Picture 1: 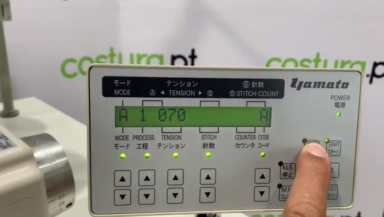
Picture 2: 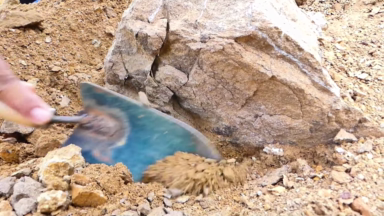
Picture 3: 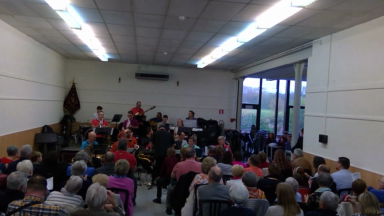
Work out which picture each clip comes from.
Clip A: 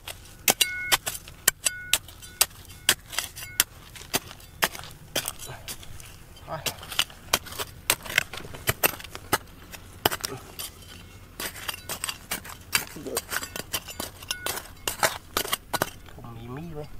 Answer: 2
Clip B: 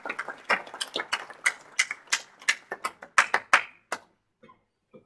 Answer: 3